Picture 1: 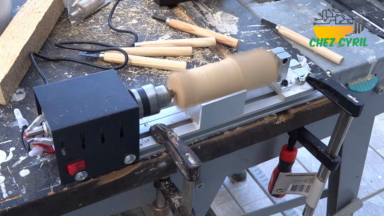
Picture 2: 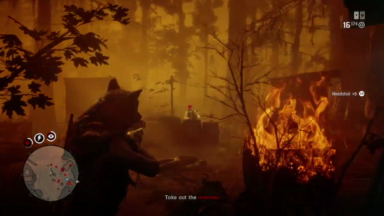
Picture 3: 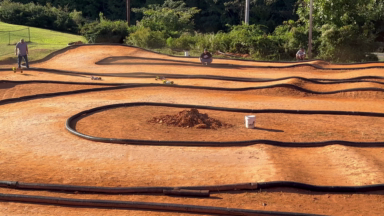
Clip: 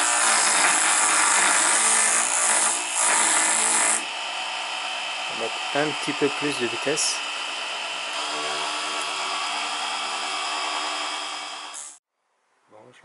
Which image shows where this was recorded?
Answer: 1